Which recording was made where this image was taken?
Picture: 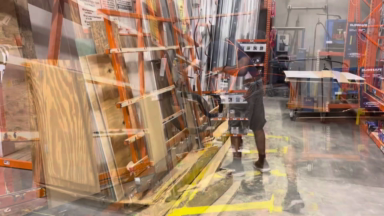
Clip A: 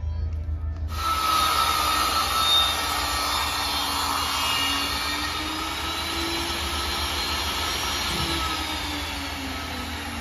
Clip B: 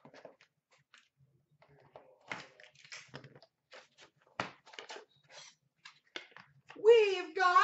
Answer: A